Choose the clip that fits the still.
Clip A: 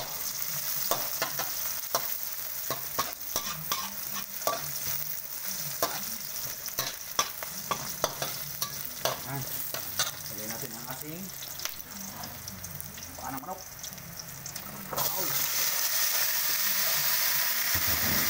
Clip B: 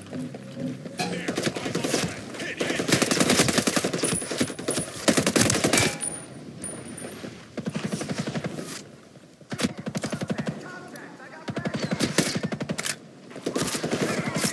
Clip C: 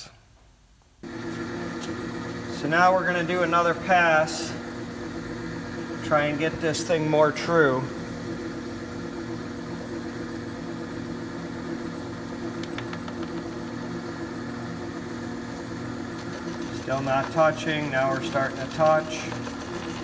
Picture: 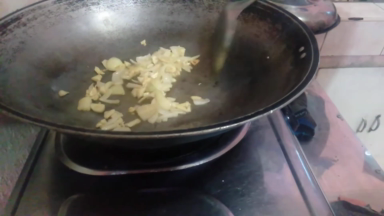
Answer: A